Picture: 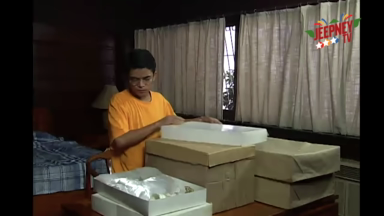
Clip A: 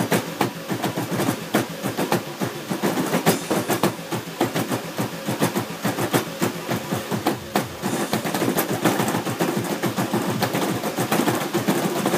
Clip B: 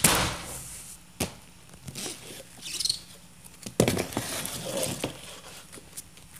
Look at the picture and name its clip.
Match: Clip B